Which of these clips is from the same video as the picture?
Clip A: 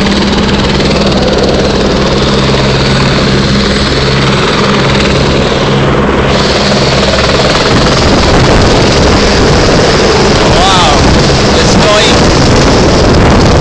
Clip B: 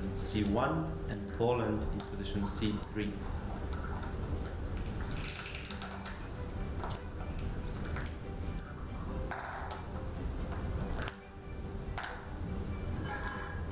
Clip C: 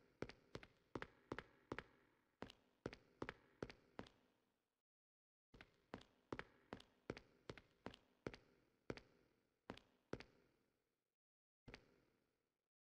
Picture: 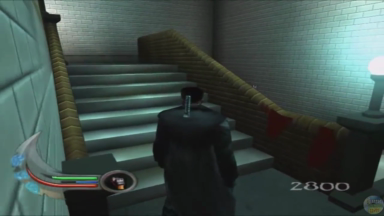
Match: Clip C